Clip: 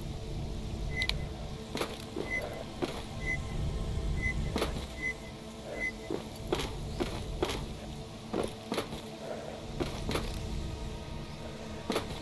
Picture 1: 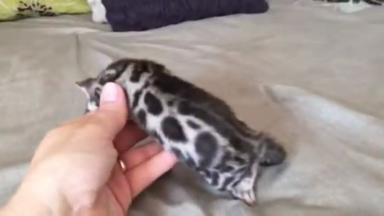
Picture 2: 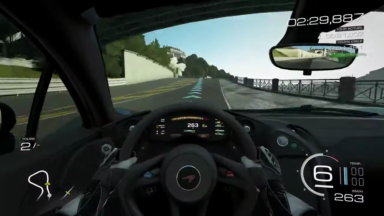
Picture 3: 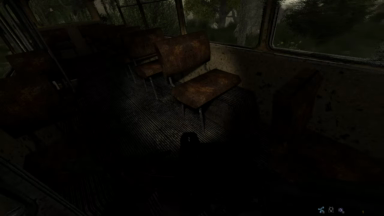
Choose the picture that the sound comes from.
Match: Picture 3